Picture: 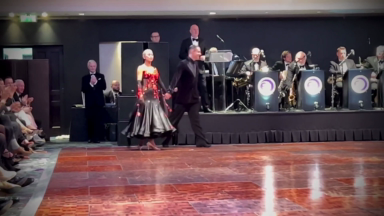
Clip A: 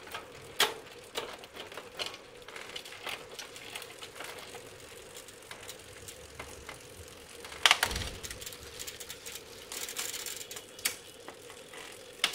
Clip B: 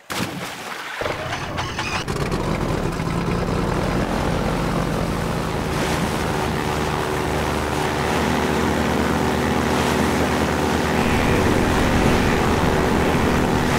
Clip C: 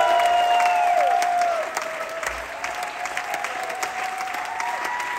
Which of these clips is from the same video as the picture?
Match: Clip C